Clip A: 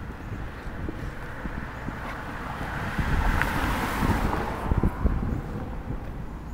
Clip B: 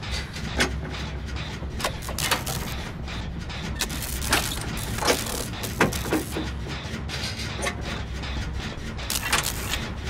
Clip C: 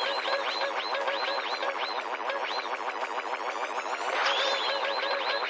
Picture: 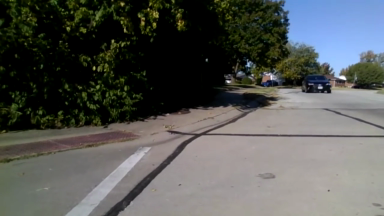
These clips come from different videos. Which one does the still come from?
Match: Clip A